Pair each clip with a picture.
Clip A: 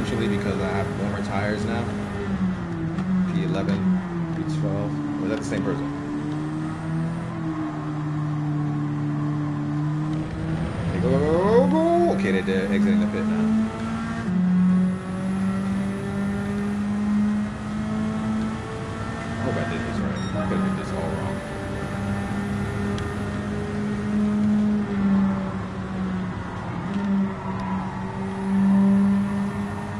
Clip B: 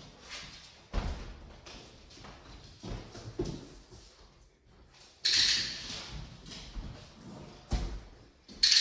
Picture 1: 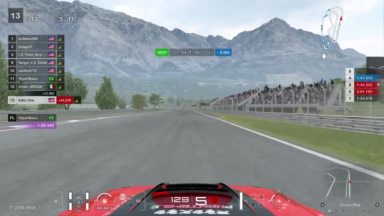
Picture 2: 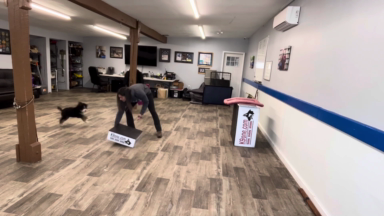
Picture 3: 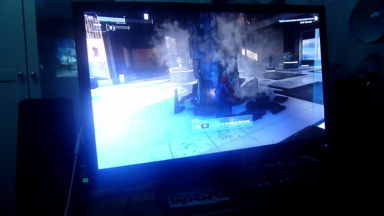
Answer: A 1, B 2